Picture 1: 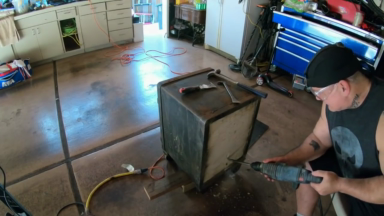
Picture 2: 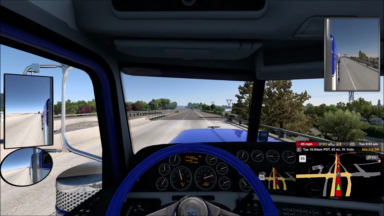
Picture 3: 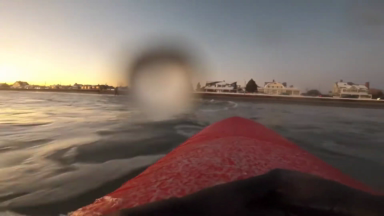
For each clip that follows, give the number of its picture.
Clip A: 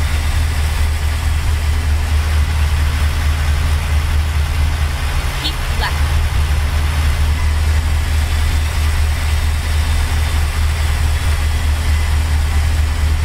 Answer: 2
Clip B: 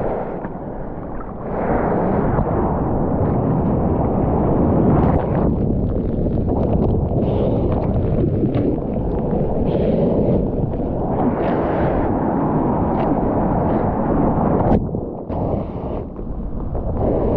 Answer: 3